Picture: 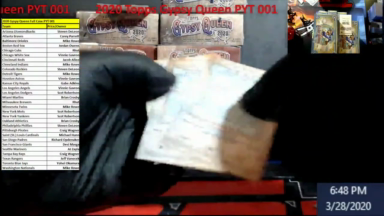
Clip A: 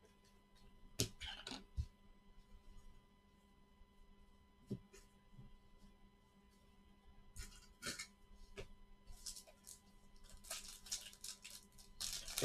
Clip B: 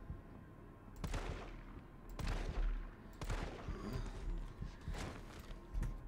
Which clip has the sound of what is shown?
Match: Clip A